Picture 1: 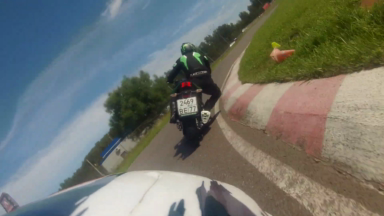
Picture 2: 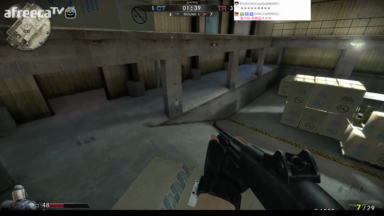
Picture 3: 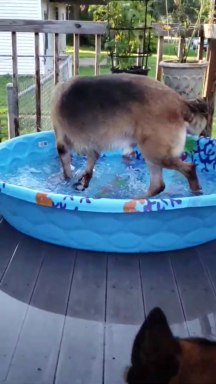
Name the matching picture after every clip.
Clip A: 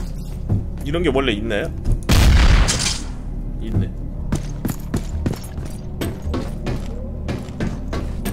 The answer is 2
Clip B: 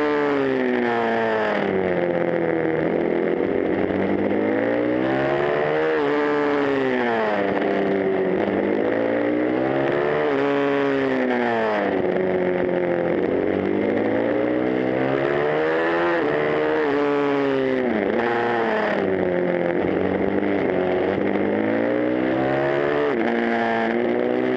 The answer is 1